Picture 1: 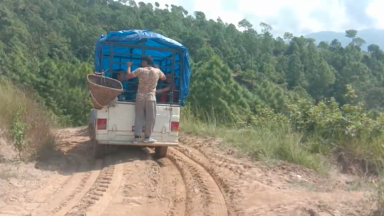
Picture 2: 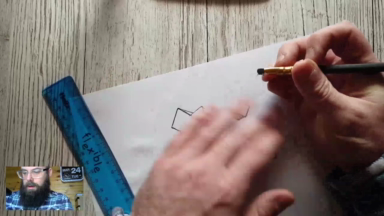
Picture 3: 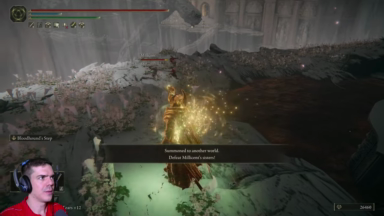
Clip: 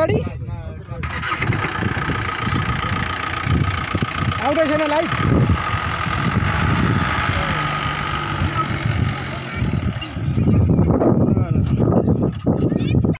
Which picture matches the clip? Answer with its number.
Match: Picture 1